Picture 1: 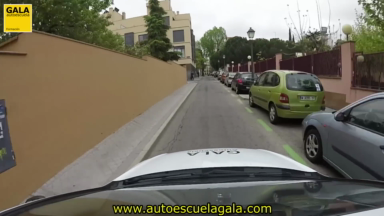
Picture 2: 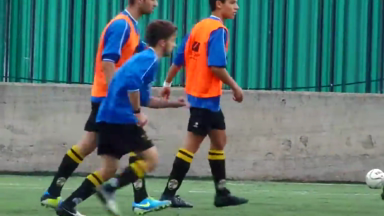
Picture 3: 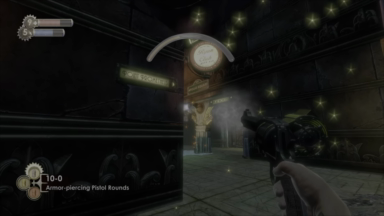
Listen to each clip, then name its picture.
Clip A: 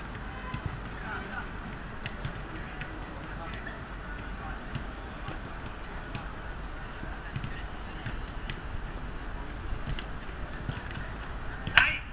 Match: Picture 2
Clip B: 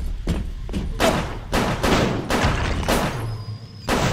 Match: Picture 3